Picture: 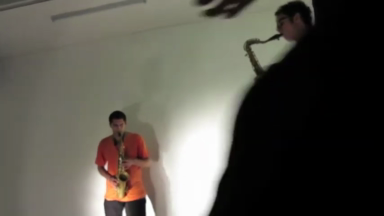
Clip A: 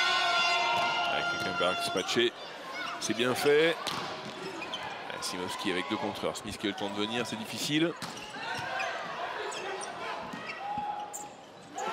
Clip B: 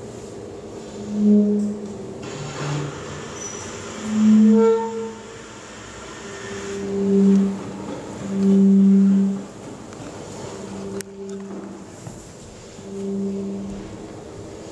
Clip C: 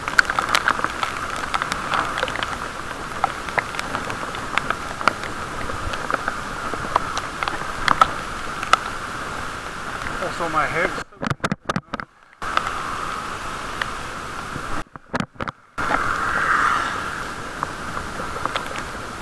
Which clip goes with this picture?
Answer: B